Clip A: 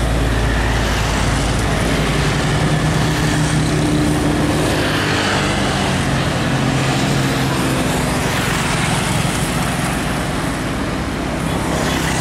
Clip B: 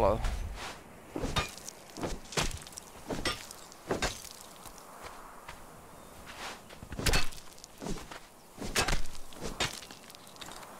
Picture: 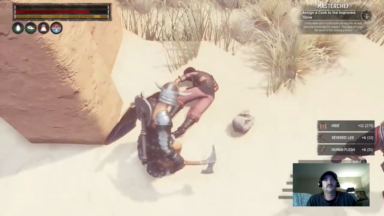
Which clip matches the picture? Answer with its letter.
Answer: B